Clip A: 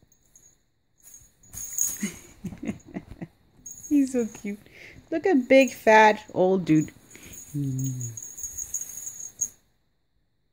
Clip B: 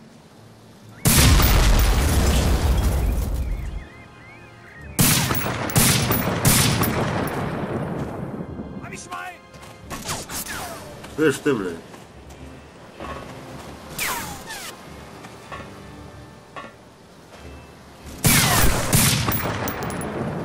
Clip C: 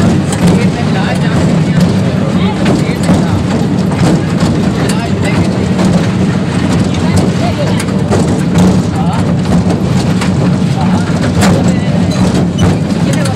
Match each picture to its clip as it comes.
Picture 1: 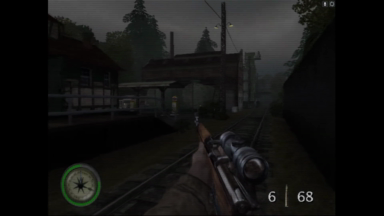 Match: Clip B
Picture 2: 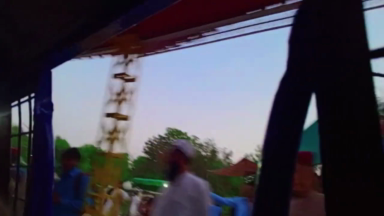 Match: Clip C